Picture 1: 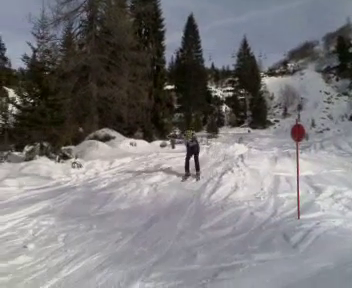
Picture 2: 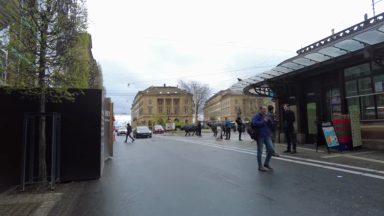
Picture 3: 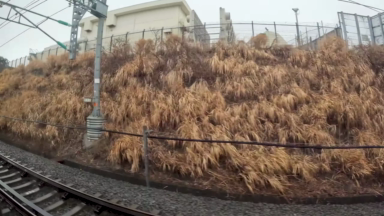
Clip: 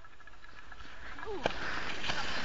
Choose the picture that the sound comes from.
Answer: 1